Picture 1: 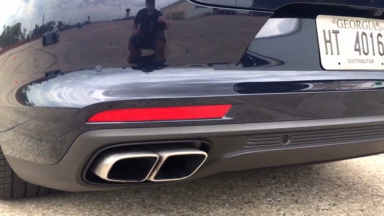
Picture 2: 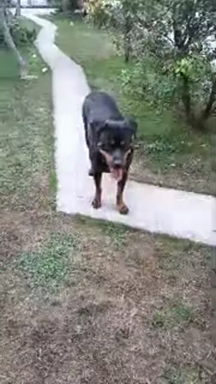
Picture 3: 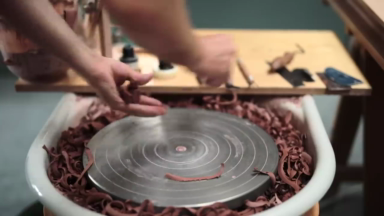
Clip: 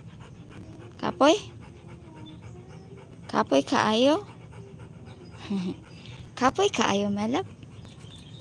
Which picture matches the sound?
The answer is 2